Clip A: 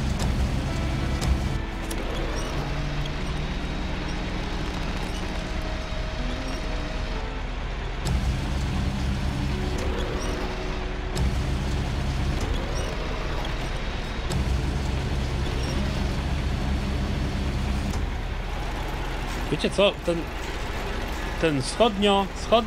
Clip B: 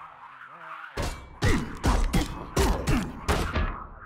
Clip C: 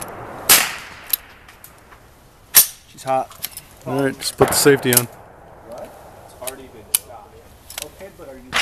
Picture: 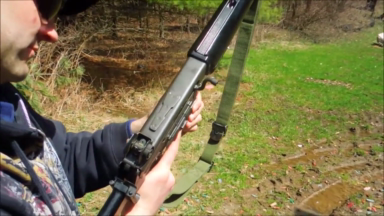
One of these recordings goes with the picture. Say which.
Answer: C